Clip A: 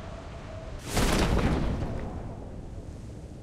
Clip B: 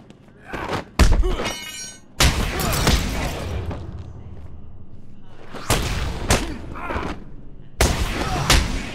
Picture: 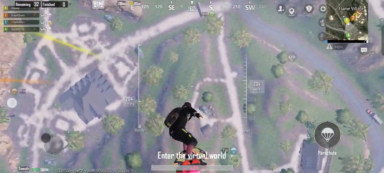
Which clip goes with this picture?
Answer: A